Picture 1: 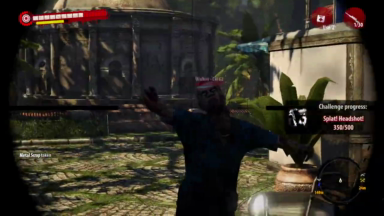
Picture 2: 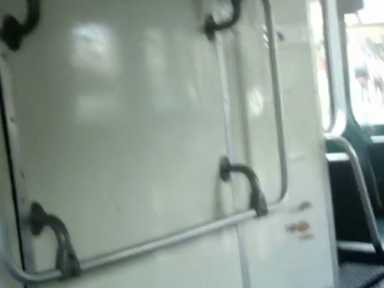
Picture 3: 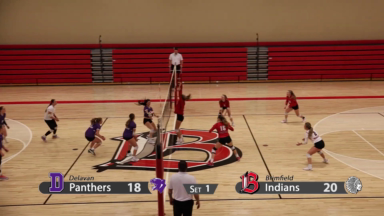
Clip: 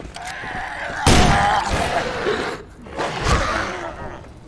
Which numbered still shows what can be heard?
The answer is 1